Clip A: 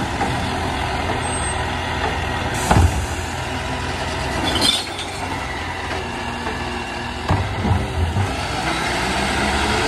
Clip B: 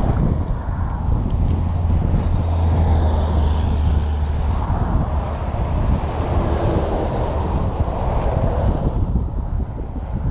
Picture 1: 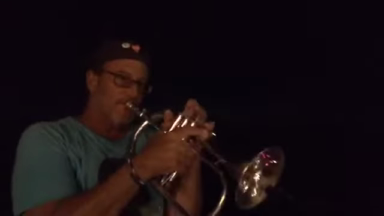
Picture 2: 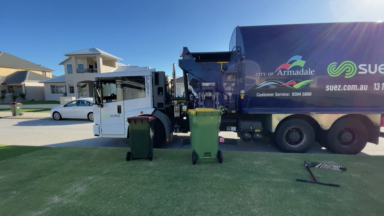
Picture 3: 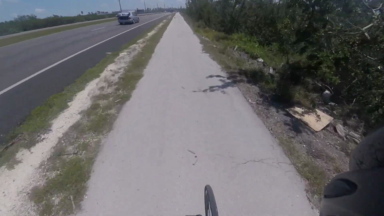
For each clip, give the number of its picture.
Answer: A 2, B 3